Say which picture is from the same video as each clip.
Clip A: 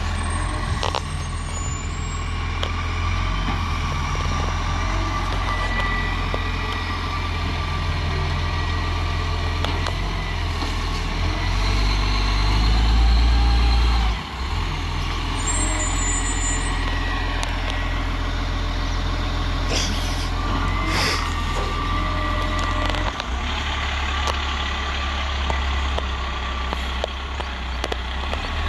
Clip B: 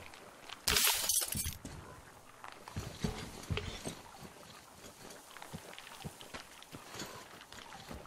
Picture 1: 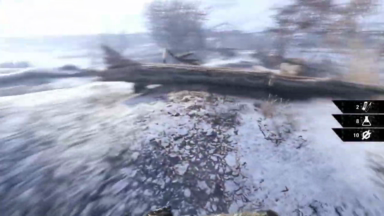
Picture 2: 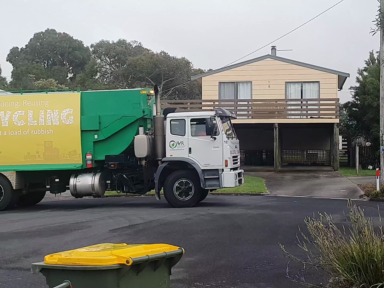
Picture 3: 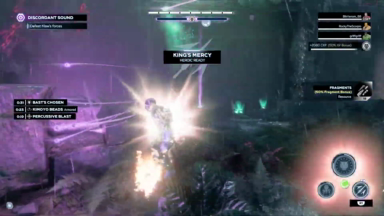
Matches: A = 2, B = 1